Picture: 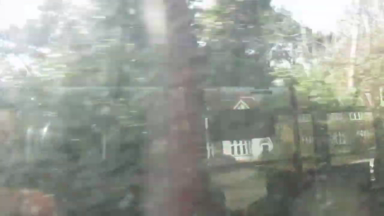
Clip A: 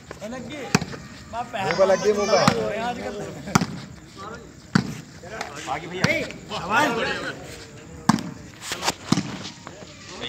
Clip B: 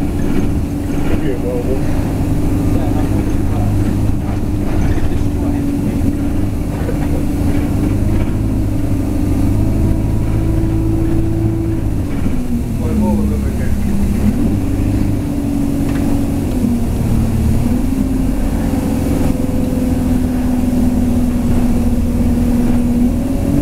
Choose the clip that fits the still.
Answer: B